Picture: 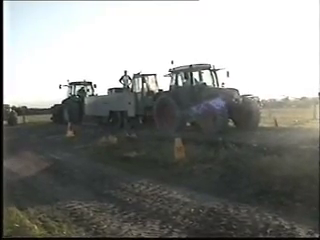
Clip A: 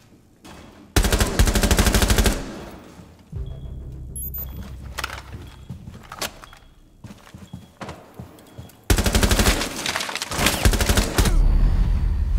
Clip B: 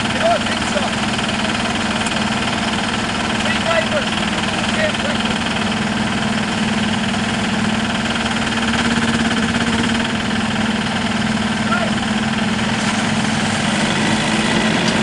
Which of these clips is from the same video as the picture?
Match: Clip B